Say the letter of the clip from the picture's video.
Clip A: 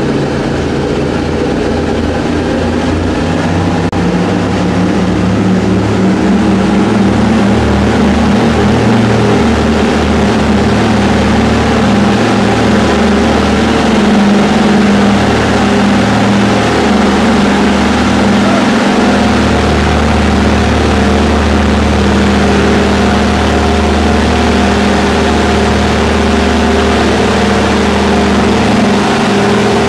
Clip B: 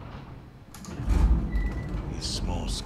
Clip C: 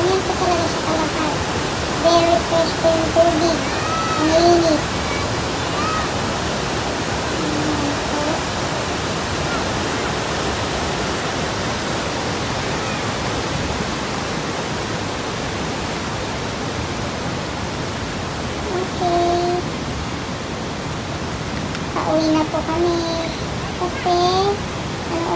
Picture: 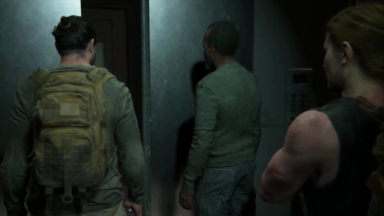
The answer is B